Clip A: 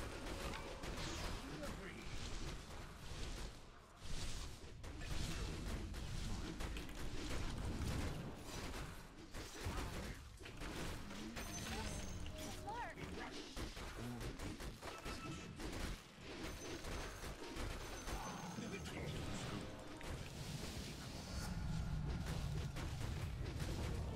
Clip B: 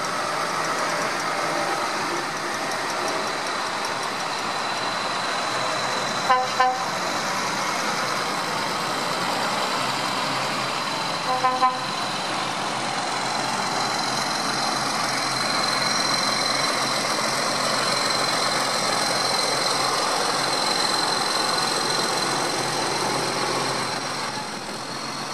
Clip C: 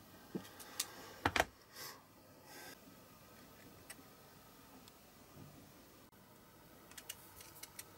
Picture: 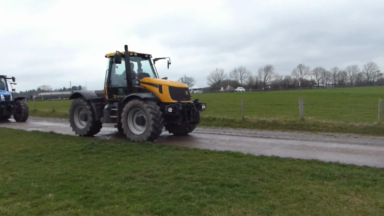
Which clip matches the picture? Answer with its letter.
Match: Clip B